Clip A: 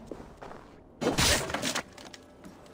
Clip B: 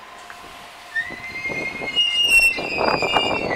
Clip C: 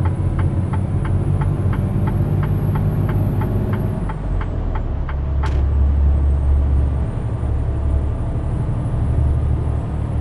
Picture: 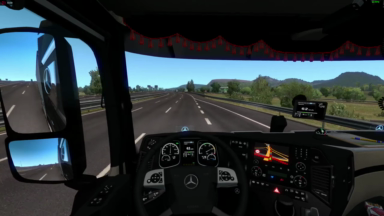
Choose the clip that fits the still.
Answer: C